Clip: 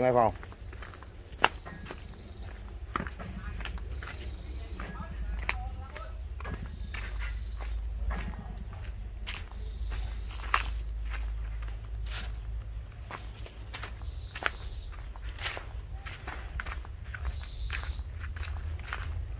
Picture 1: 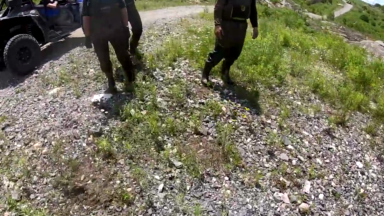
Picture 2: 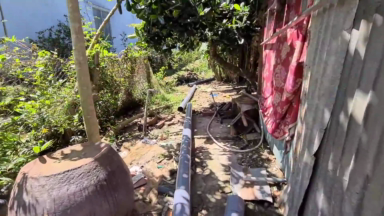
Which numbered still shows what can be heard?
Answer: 2